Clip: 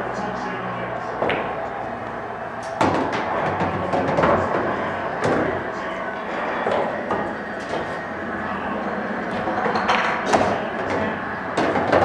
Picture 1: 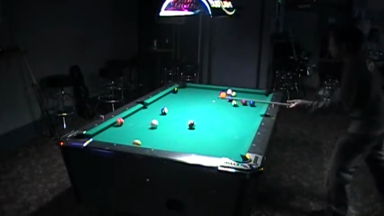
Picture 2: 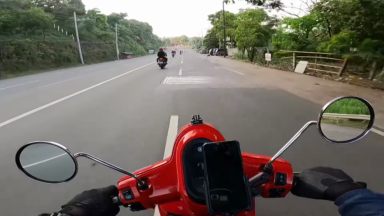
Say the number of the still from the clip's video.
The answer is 1